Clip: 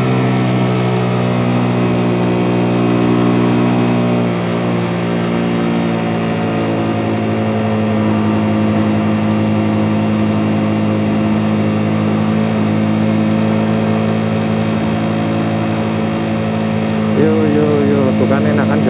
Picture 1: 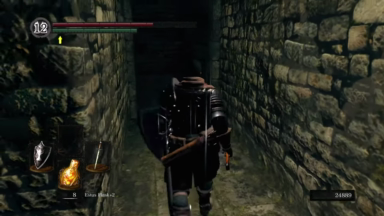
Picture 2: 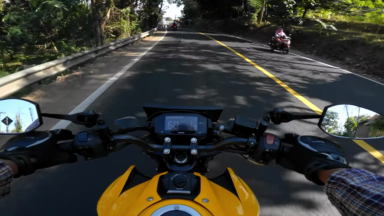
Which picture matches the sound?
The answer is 2